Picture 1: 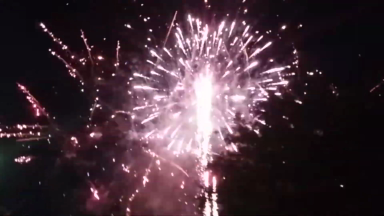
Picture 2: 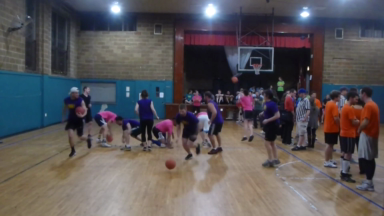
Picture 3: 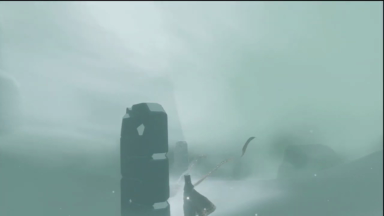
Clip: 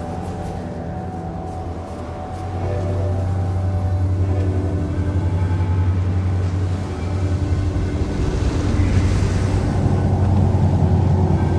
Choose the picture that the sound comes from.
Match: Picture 3